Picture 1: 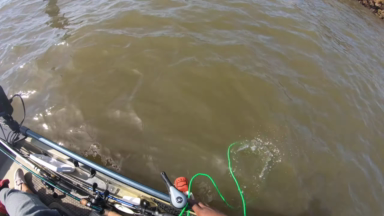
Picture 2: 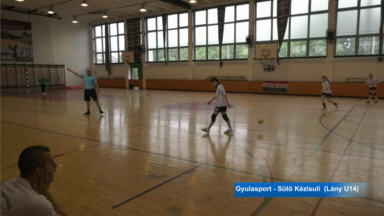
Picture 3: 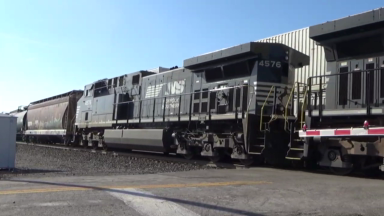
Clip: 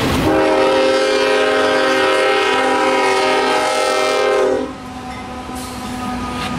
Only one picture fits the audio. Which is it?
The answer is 3